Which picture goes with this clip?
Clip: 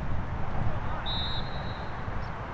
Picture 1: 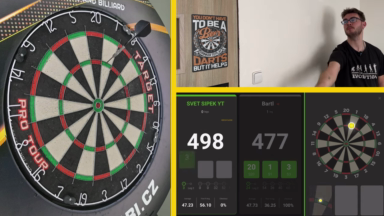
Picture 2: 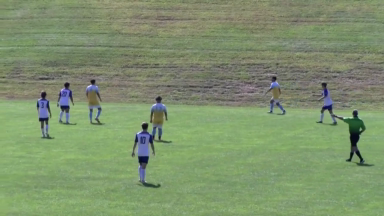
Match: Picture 2